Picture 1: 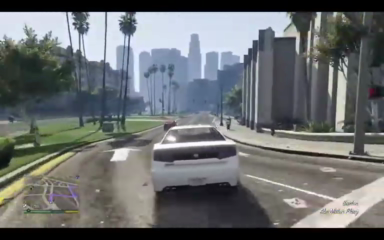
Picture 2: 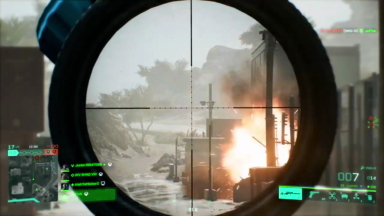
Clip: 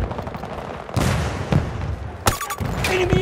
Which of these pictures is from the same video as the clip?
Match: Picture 2